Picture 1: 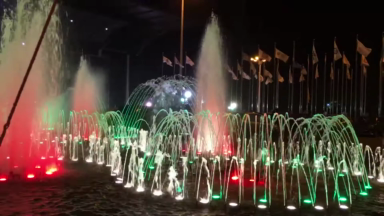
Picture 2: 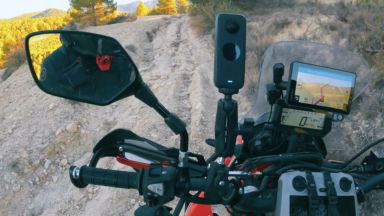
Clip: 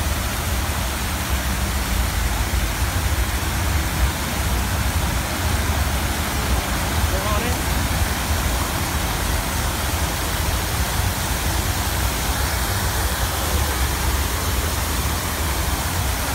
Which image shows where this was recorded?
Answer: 1